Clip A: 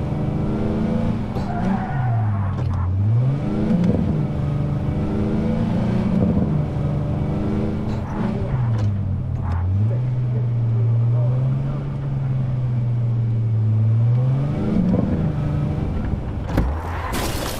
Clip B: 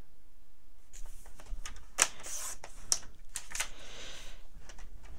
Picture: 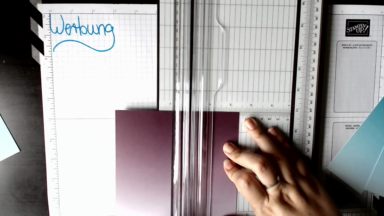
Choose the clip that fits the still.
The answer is B